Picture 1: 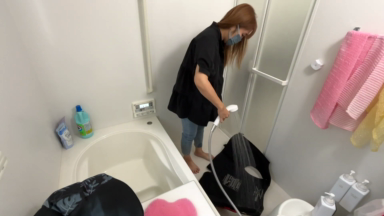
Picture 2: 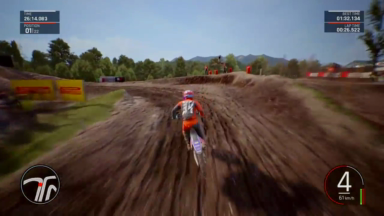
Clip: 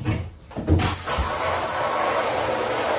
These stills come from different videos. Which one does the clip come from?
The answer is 1